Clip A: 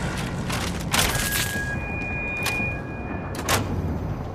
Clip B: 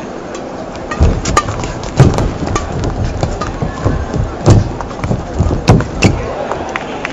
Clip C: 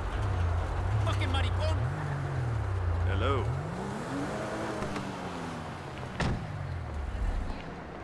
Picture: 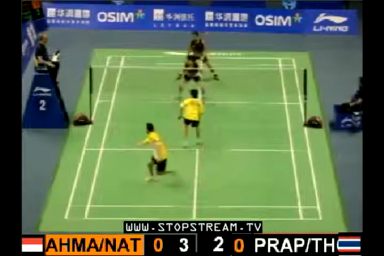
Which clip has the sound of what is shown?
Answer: B